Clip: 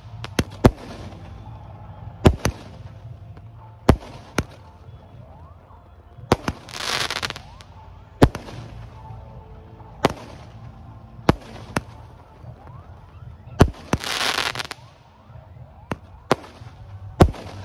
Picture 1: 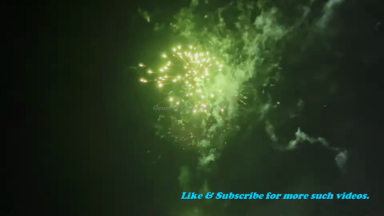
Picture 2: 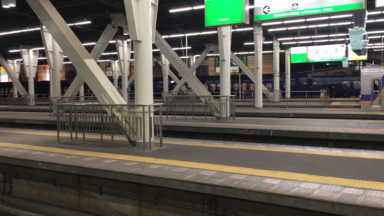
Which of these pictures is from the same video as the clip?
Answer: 1